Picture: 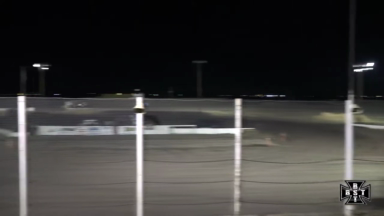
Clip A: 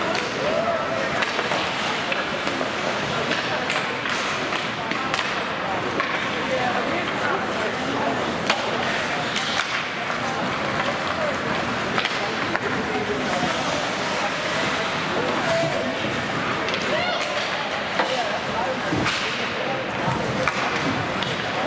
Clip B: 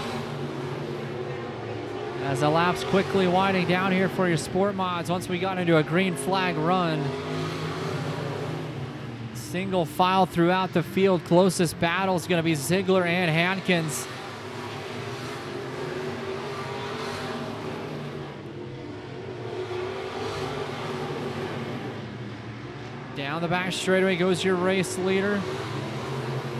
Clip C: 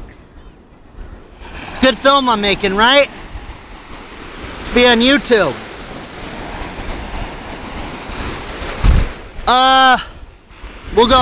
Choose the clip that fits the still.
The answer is B